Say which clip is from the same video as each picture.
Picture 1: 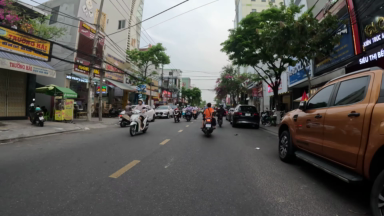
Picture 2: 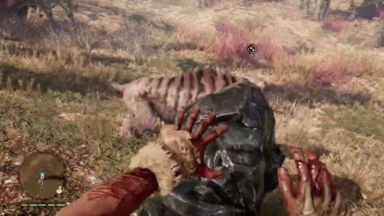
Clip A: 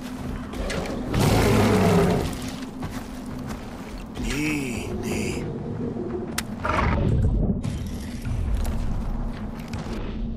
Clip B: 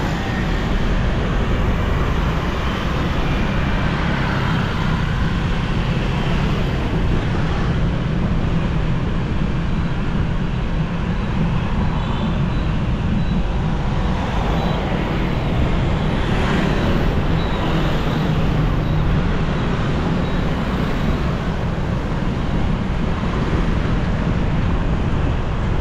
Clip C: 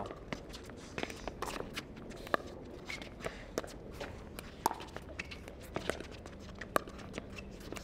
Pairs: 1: B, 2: A